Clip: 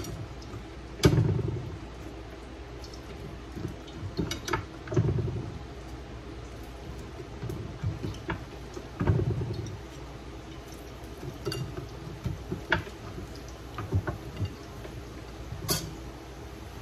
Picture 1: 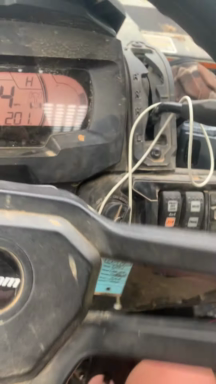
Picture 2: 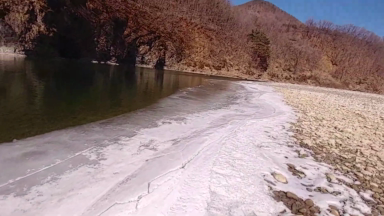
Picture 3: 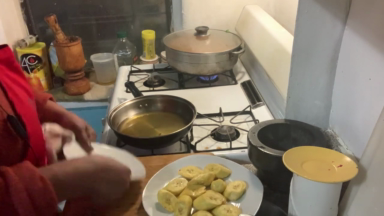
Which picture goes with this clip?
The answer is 3